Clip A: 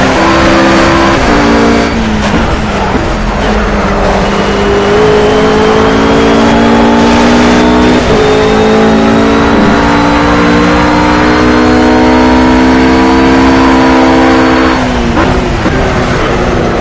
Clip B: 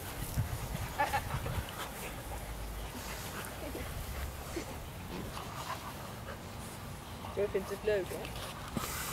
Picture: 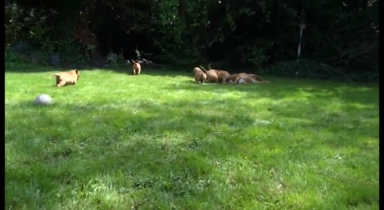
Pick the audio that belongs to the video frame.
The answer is B